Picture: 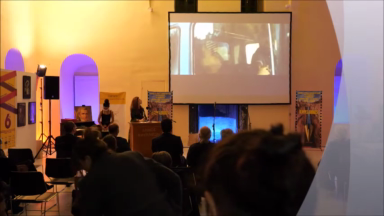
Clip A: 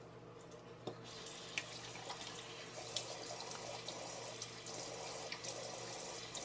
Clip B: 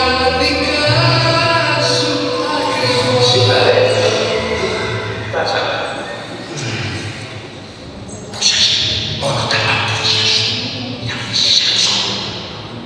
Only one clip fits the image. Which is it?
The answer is B